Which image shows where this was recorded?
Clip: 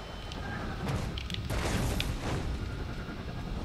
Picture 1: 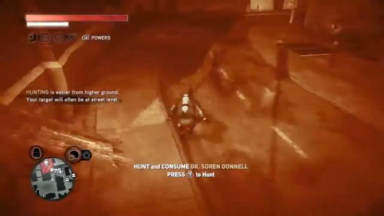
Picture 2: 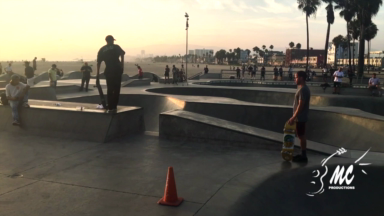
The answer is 1